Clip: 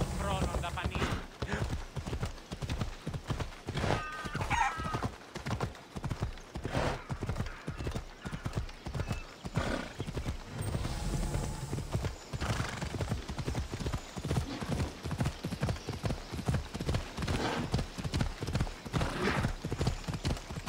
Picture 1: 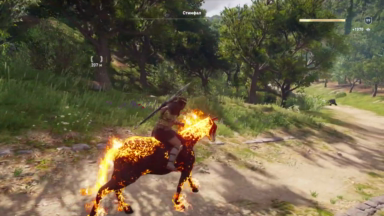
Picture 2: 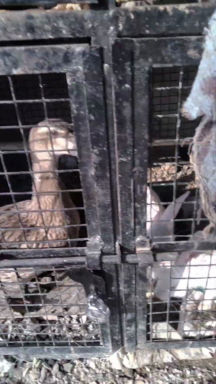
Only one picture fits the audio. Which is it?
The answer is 1